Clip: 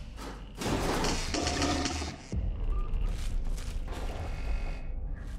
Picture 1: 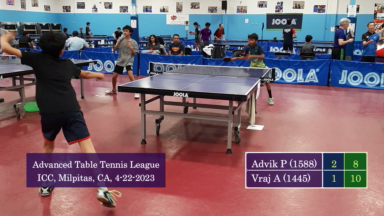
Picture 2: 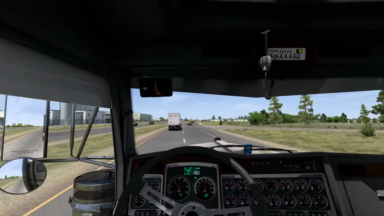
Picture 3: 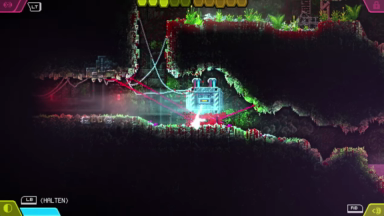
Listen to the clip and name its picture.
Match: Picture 3